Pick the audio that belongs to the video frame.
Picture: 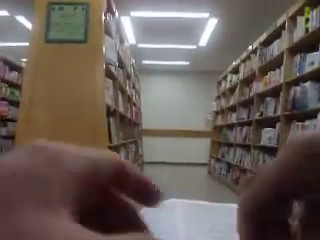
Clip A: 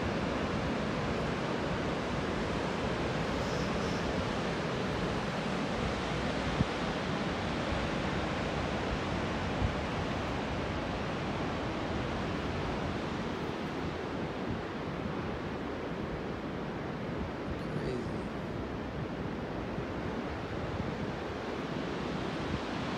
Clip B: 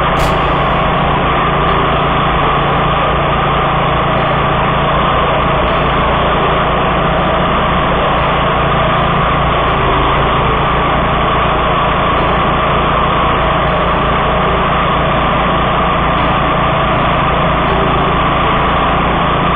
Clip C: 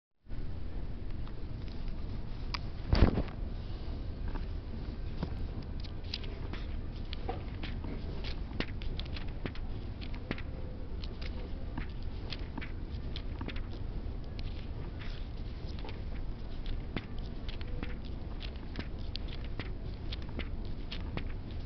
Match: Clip C